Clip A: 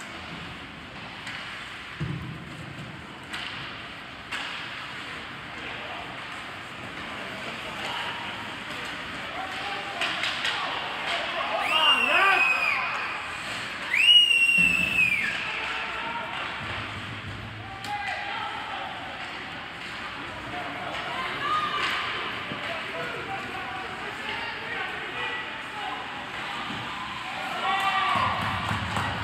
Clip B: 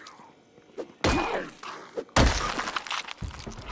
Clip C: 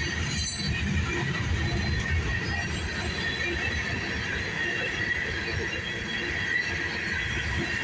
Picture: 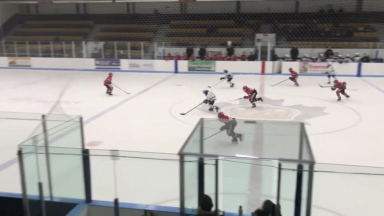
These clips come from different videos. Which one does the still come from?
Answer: A